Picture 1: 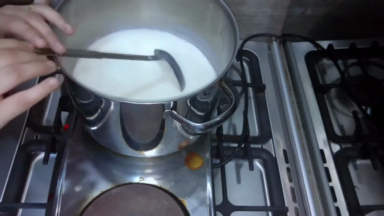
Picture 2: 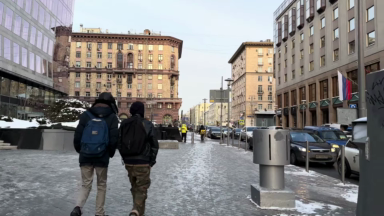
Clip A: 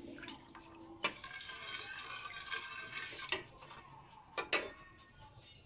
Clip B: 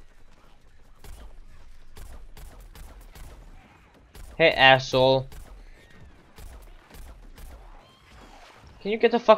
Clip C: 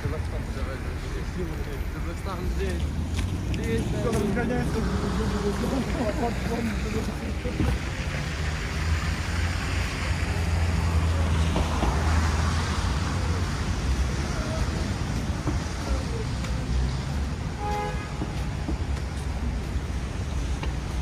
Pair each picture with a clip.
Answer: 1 A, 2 C